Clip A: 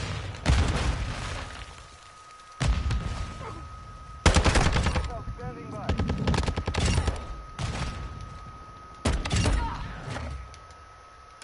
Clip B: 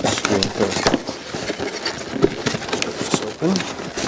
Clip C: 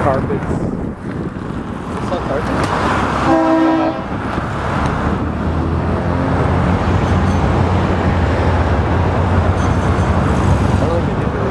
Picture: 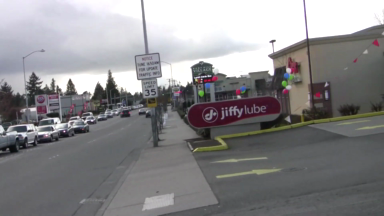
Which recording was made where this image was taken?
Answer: C